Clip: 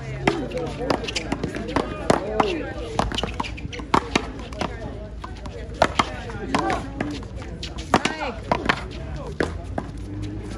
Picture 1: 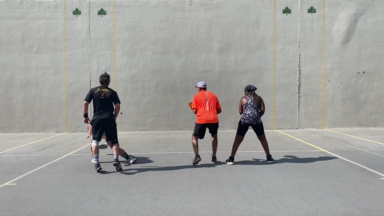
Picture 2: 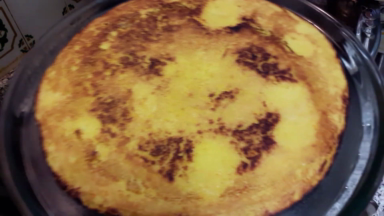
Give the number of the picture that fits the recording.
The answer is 1